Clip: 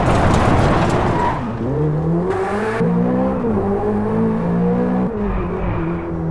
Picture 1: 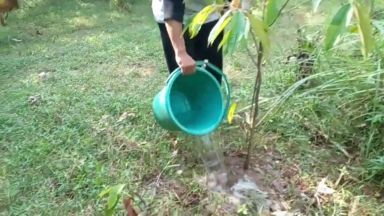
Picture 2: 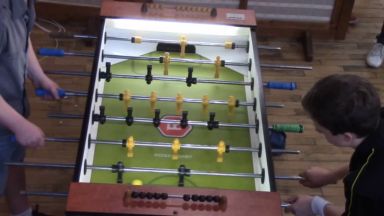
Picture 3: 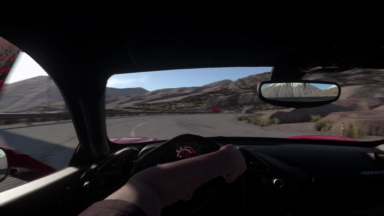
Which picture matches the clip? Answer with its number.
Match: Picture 3